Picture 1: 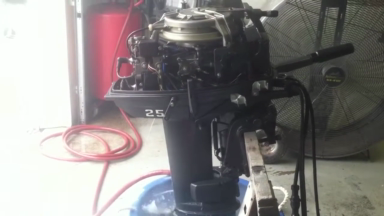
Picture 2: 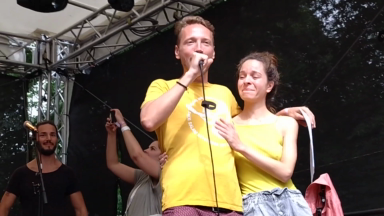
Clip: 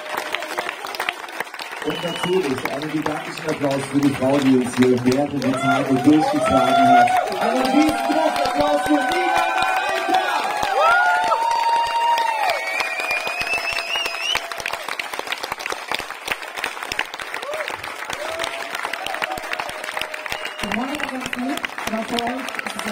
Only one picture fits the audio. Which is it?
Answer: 2